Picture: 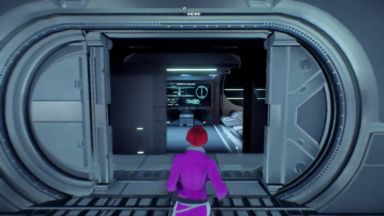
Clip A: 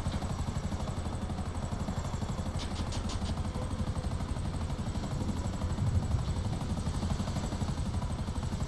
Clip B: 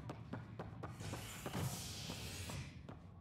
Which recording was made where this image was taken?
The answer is B